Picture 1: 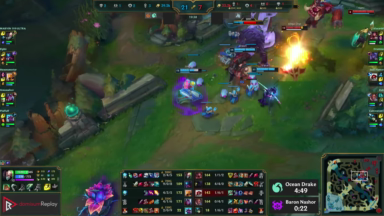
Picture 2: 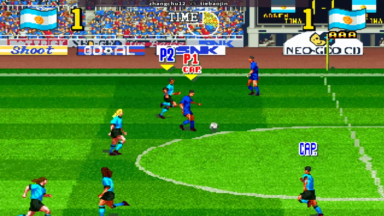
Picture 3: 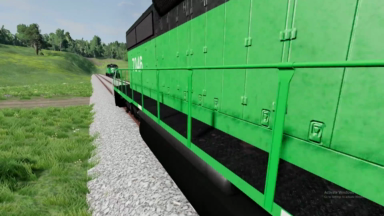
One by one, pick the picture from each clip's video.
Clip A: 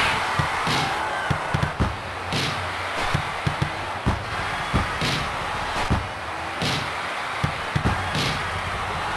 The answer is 2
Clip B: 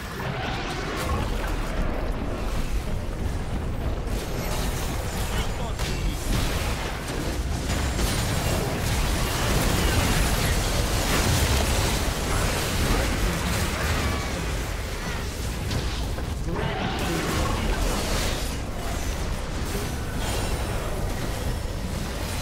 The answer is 1